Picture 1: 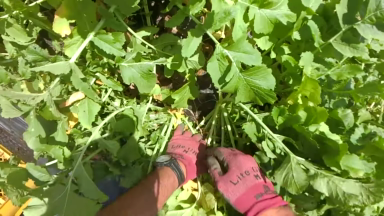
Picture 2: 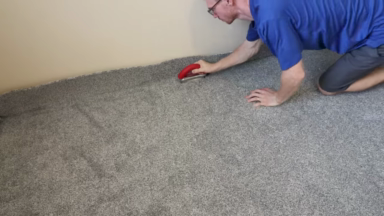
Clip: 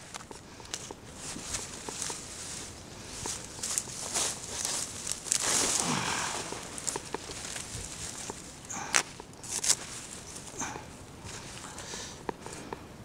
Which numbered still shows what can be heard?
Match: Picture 1